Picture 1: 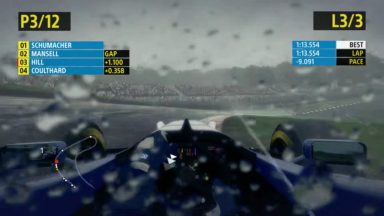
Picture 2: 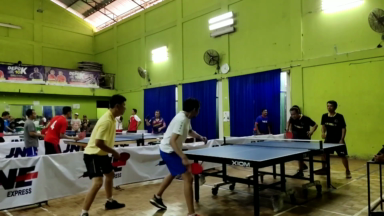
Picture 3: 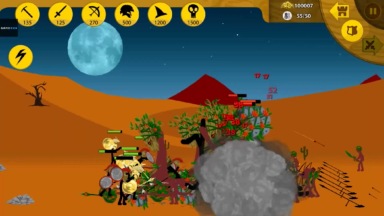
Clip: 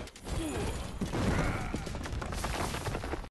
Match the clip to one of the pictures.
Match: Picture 3